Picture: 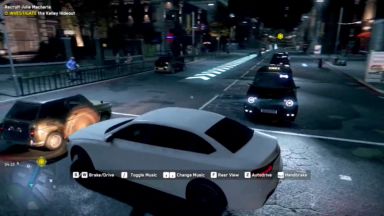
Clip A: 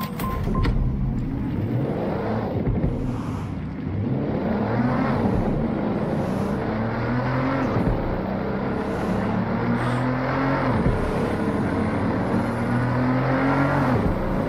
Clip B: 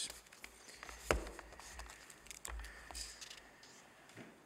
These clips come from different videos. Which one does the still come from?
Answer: A